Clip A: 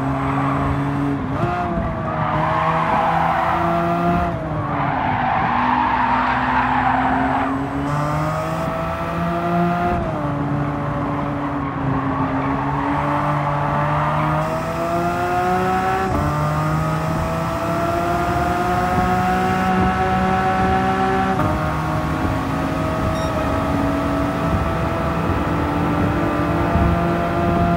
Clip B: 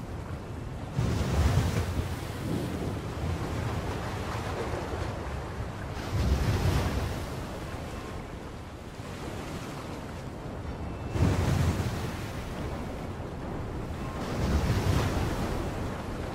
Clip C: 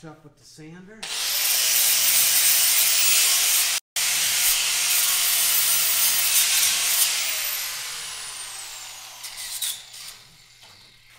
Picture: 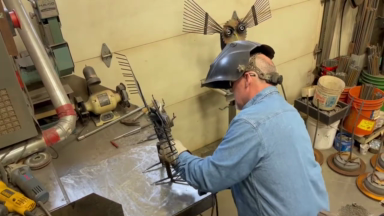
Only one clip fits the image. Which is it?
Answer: C